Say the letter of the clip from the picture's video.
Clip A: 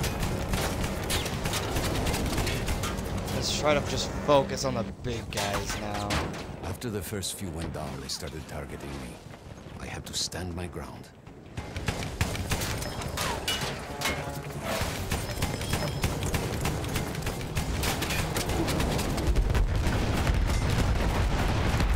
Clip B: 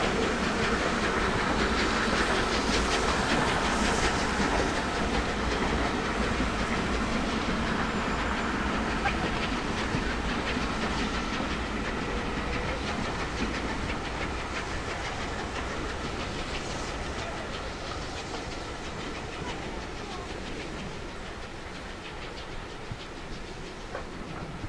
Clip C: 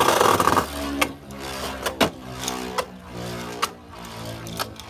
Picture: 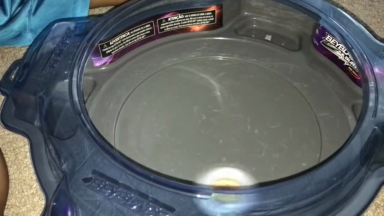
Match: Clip C